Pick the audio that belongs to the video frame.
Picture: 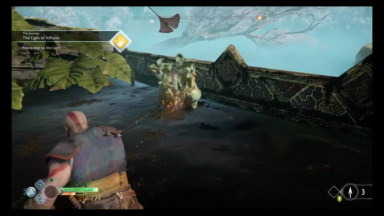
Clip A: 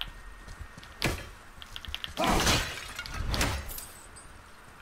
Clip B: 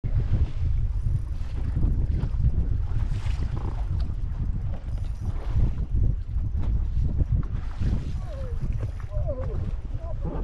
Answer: A